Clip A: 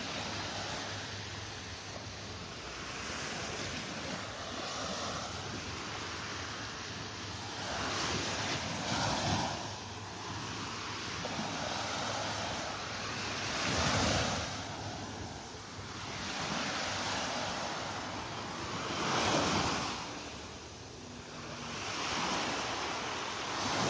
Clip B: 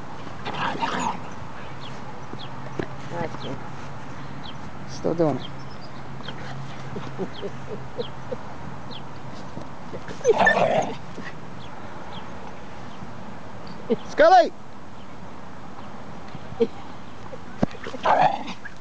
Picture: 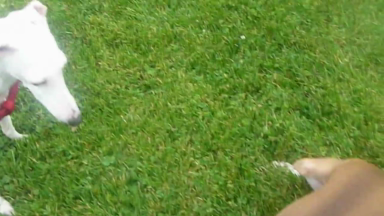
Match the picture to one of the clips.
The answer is B